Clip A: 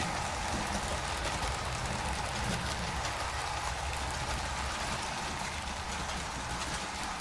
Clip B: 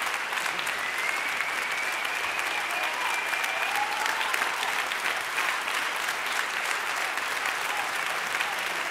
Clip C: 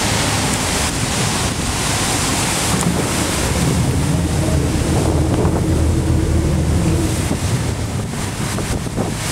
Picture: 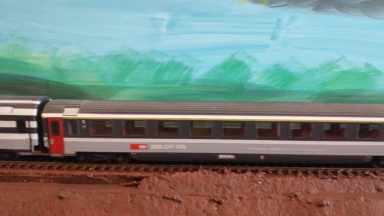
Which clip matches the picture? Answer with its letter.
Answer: A